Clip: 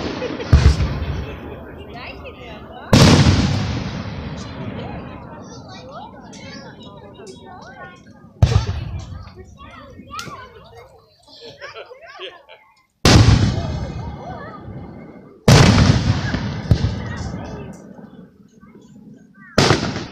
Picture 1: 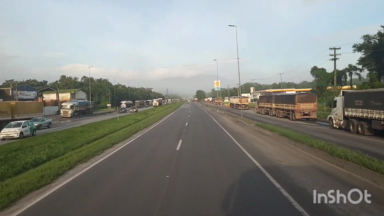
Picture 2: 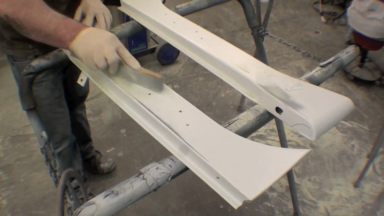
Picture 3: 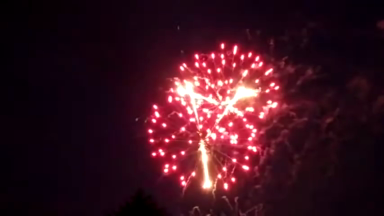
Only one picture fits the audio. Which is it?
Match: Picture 3